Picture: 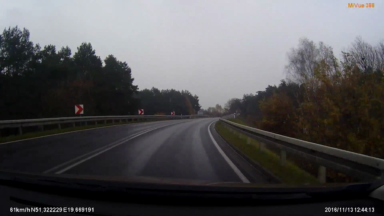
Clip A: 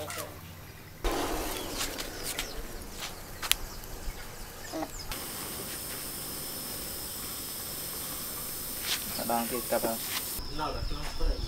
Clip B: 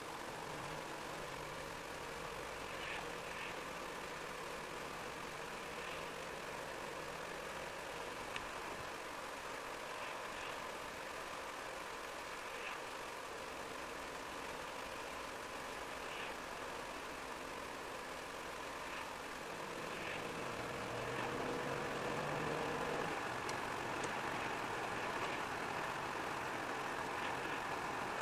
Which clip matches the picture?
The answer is B